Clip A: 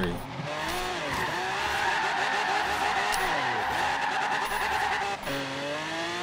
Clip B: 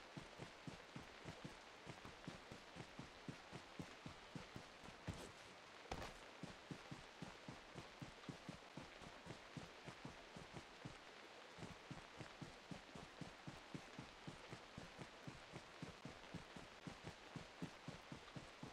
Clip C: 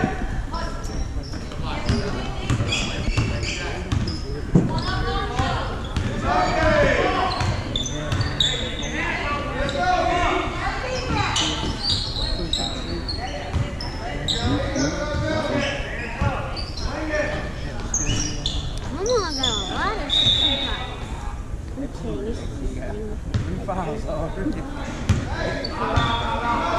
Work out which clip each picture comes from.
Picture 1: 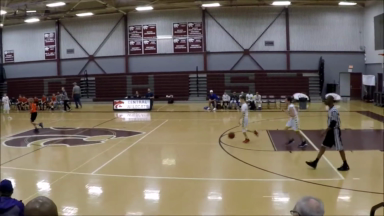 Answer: C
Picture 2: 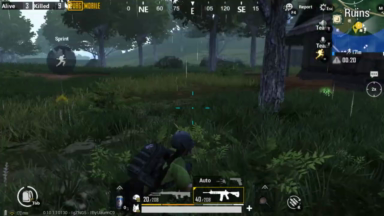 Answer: B